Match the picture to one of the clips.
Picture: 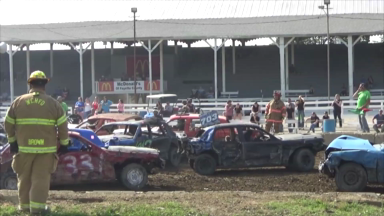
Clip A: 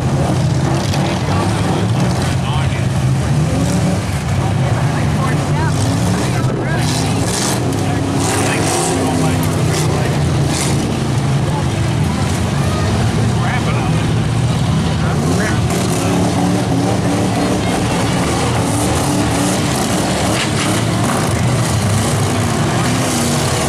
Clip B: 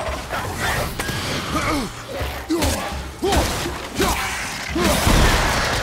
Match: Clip A